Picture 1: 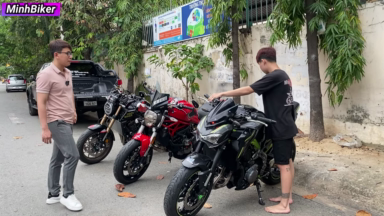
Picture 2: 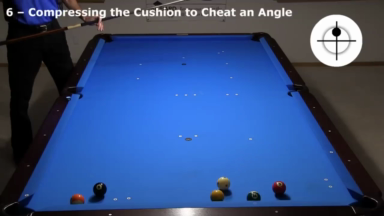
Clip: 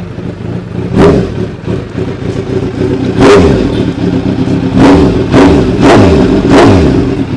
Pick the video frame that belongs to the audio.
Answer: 1